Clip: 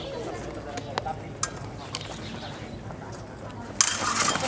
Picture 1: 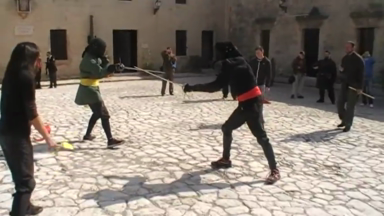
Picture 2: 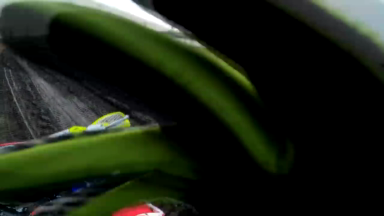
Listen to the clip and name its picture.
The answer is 1